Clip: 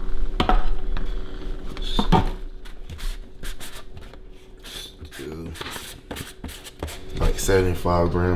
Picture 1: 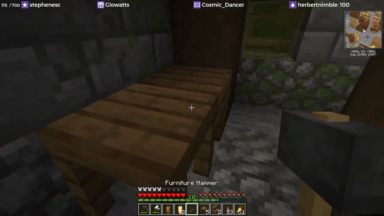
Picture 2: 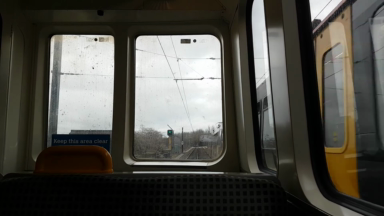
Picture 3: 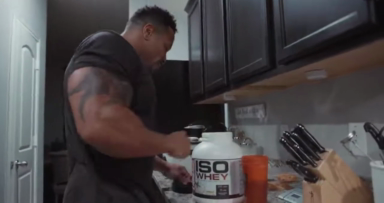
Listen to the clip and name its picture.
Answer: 3